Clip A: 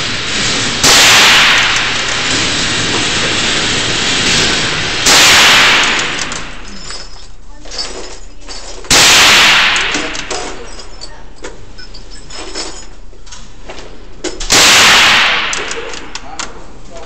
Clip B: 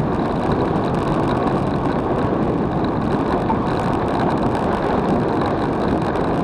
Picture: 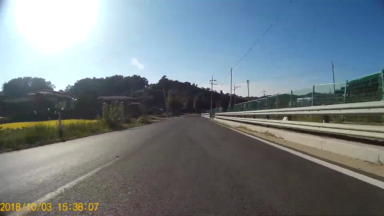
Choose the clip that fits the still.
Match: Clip B